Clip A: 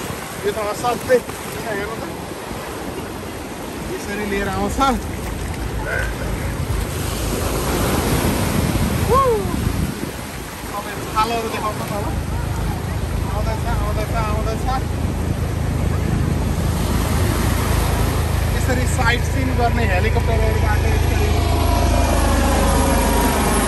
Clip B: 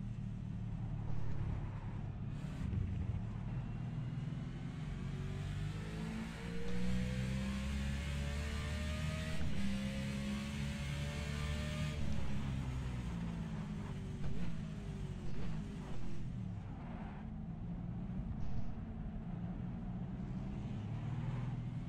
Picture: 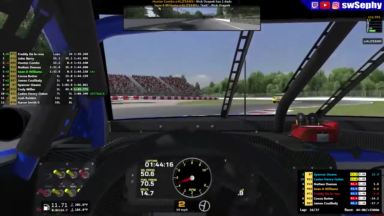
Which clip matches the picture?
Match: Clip B